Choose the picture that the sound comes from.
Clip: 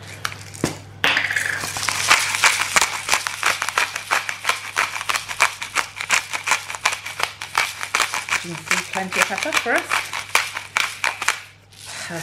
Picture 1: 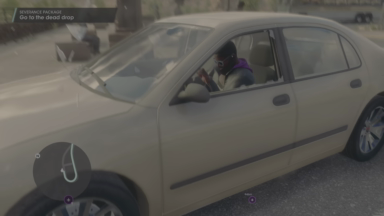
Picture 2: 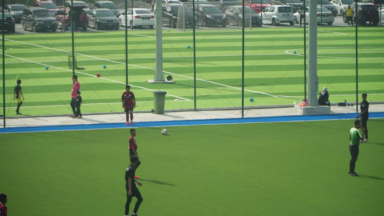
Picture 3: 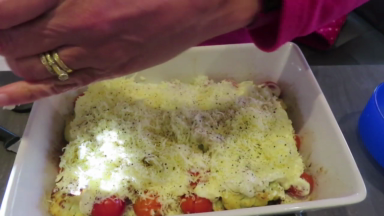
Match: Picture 3